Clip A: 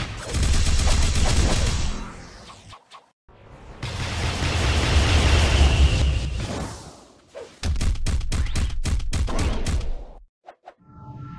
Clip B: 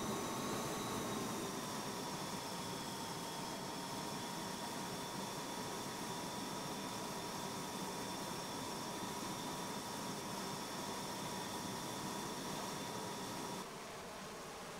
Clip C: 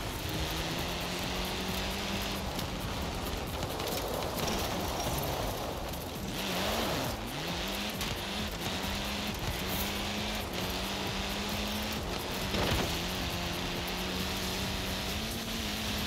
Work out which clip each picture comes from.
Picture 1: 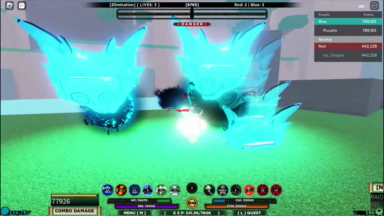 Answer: A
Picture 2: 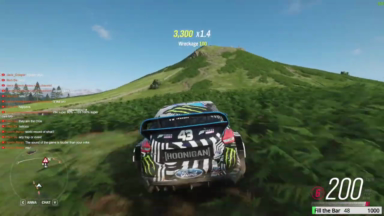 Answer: C